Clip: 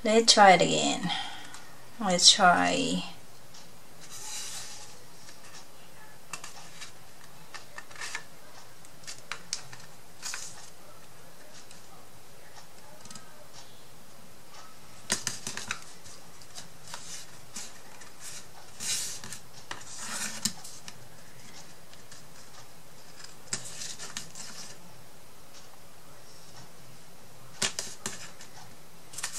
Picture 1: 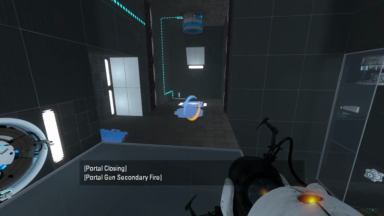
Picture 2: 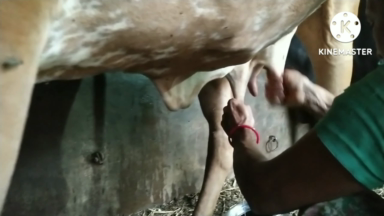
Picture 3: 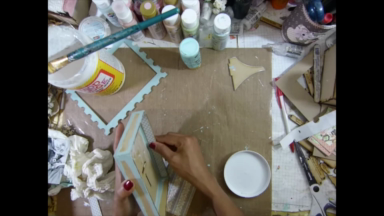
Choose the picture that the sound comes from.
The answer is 3